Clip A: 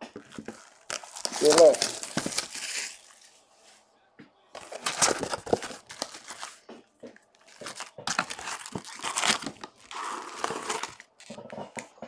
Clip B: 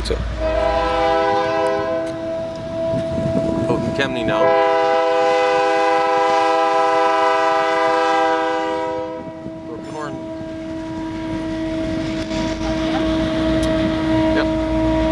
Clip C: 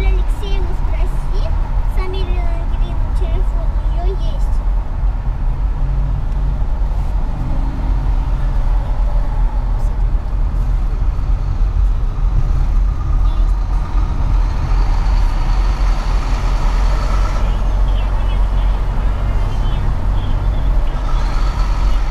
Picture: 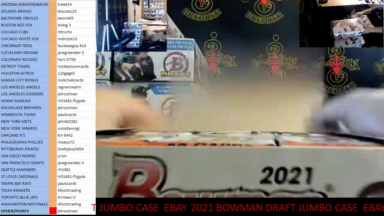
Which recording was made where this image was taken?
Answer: A